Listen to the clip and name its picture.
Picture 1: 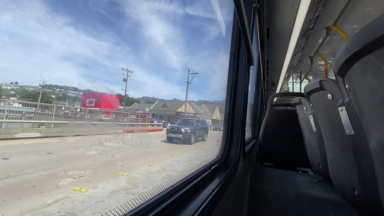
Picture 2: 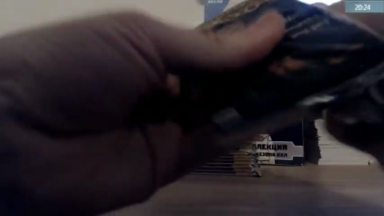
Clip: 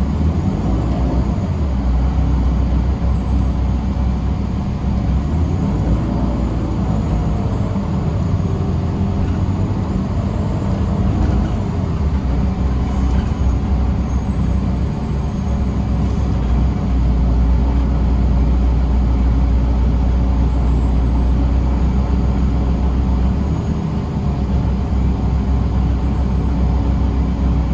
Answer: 1